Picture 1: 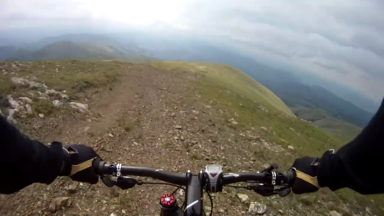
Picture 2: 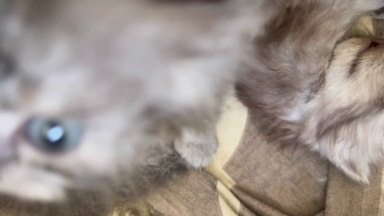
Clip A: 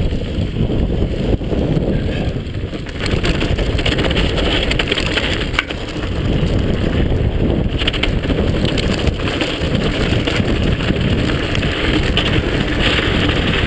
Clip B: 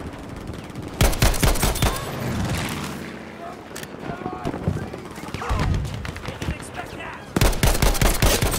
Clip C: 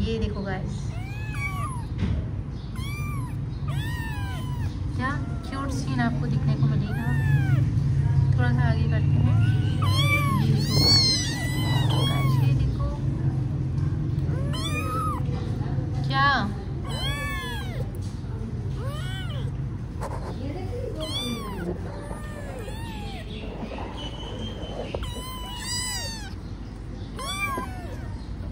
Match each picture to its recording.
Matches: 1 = A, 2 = C